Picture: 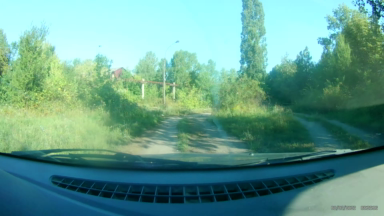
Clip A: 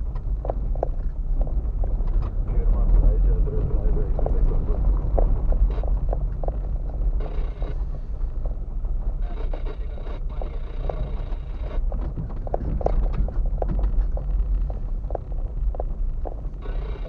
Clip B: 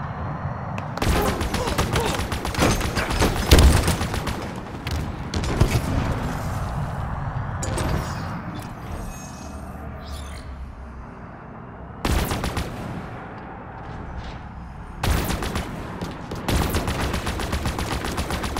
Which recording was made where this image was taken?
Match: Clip A